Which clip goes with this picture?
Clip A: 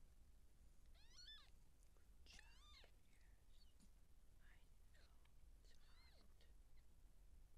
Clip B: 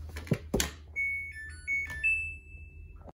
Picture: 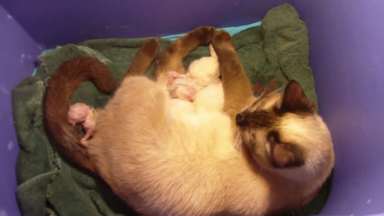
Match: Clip A